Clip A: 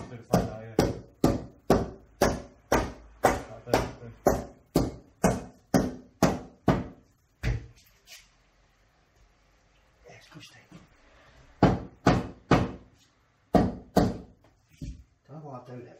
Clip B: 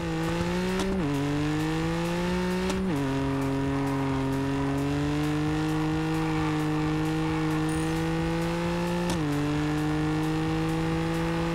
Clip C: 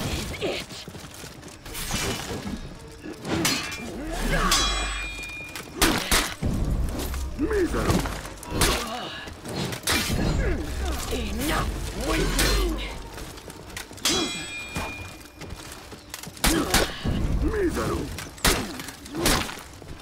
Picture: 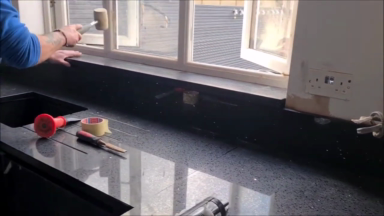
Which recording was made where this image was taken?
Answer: A